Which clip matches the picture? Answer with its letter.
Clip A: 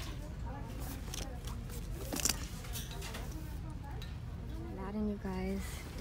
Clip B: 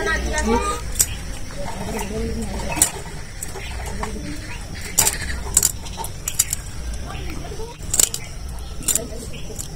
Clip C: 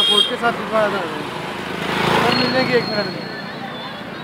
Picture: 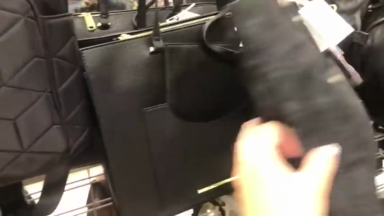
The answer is A